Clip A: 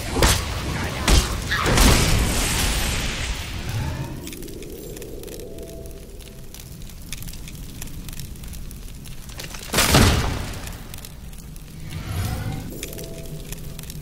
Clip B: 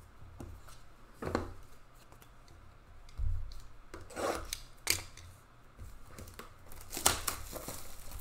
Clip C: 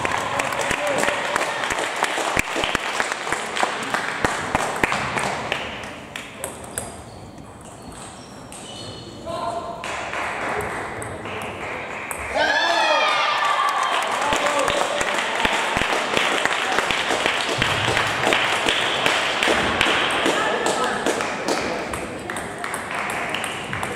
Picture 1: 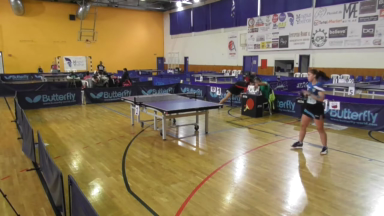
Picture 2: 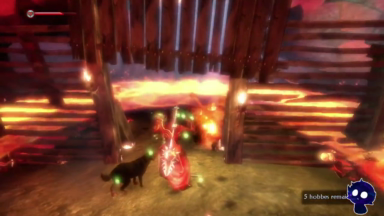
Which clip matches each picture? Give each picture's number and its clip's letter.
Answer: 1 C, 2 A